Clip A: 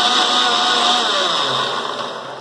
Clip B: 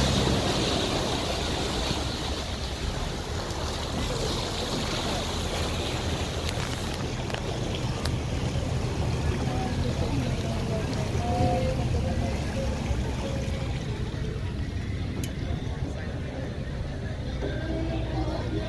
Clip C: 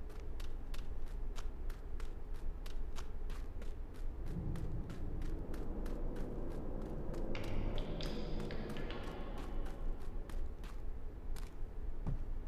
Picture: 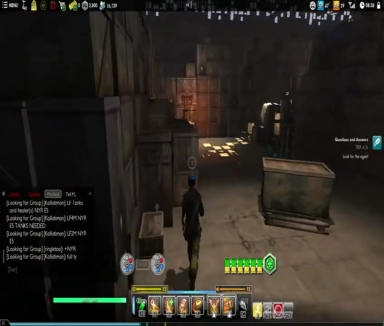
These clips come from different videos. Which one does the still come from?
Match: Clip C